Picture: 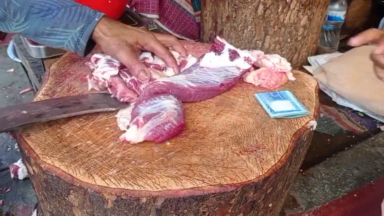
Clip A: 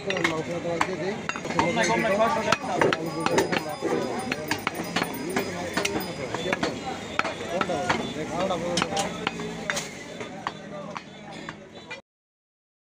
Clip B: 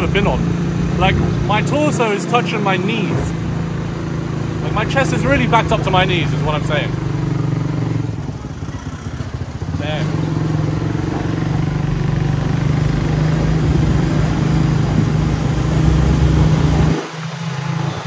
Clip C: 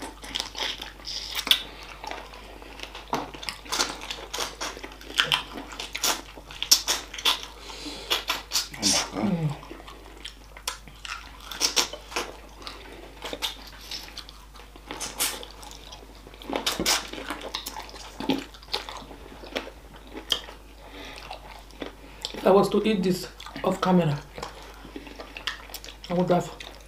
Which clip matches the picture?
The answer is A